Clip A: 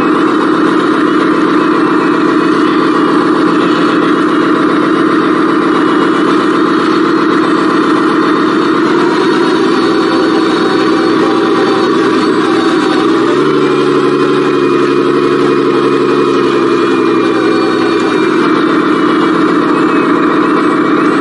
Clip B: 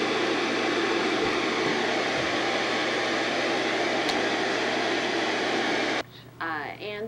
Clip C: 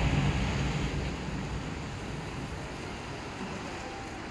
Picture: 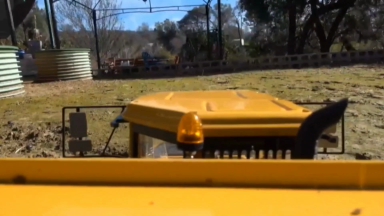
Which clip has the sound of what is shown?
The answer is A